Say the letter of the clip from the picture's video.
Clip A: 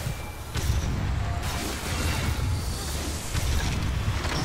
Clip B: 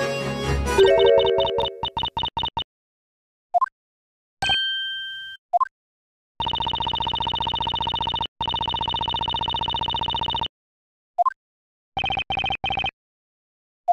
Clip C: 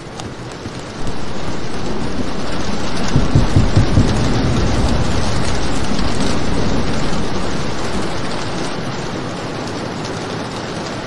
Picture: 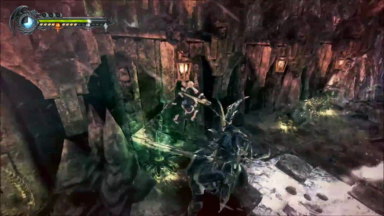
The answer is A